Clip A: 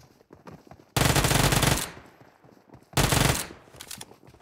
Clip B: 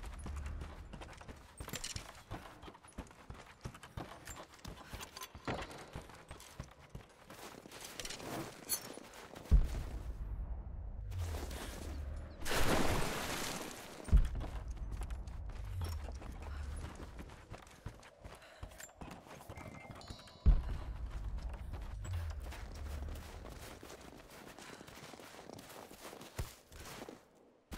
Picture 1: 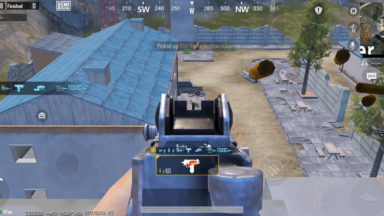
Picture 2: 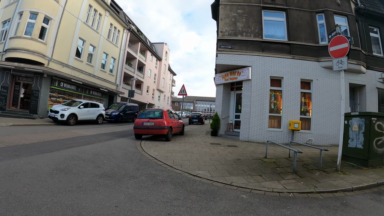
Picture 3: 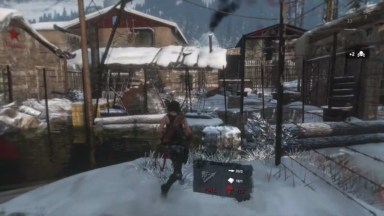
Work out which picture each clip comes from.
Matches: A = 1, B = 3